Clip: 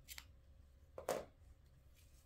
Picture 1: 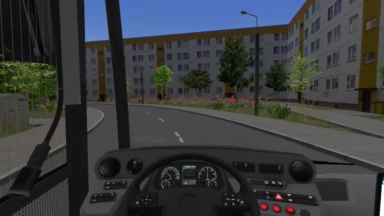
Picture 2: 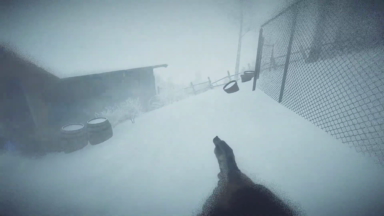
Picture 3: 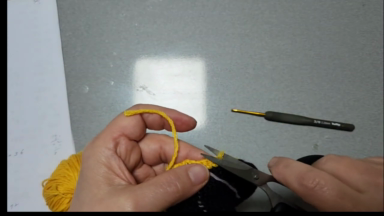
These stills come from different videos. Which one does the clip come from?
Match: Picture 3